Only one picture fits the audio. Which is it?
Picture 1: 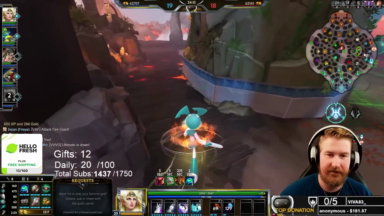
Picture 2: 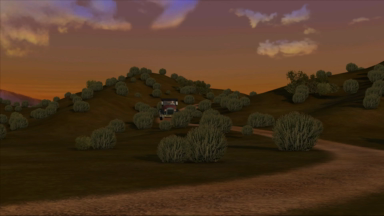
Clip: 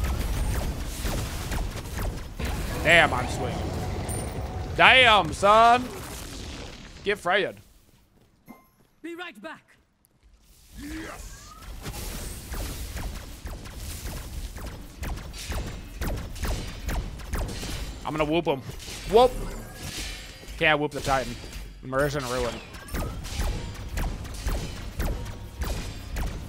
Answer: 1